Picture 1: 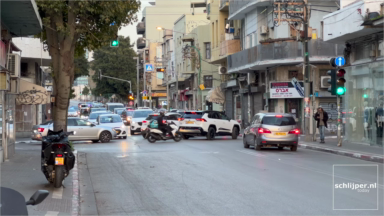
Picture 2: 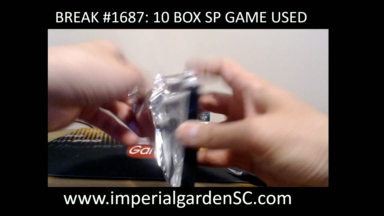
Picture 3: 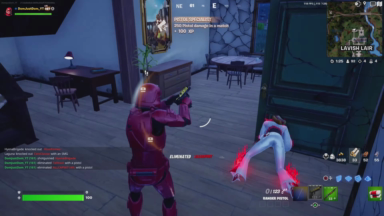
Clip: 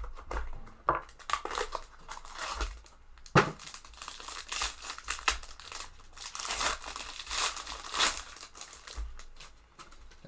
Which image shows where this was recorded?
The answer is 2